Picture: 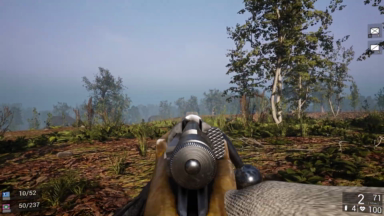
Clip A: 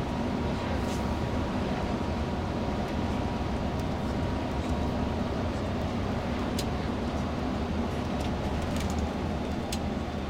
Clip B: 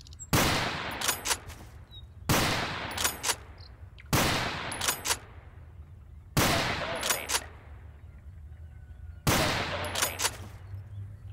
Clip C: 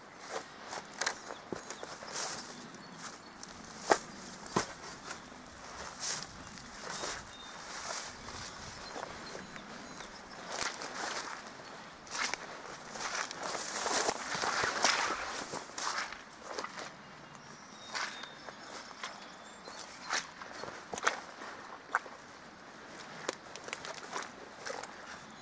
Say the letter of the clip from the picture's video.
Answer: B